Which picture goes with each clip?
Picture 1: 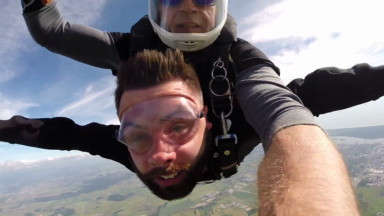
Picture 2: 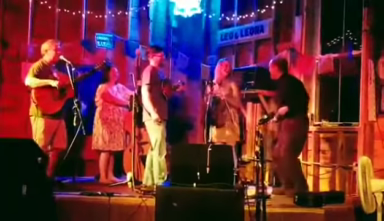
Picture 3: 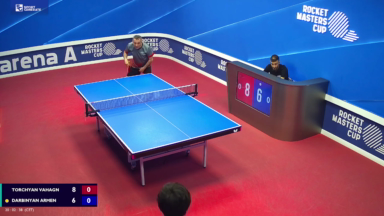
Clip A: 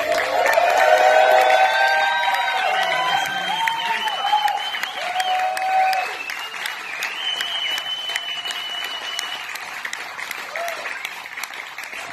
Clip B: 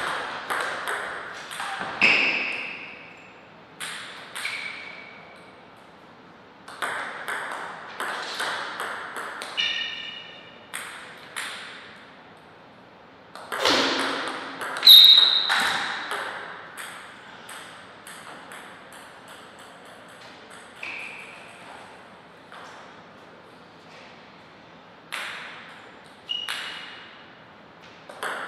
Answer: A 2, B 3